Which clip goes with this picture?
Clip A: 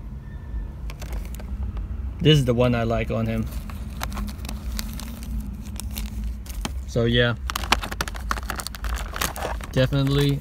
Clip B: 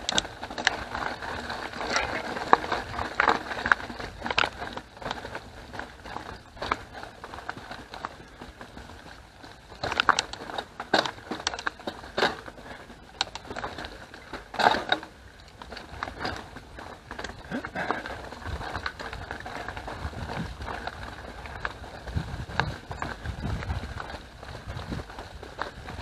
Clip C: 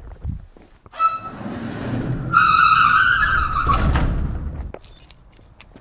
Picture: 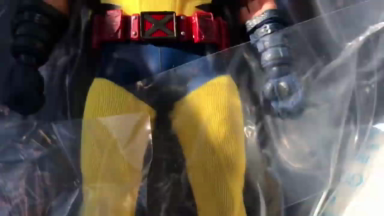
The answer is A